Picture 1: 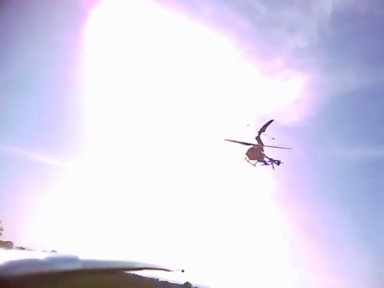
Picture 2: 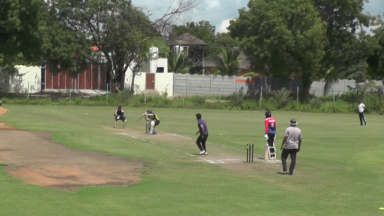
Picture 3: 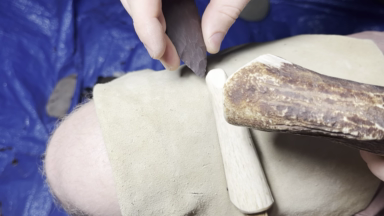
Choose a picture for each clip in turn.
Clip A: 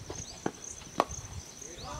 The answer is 2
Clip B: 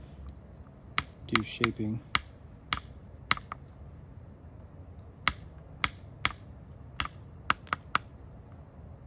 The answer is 3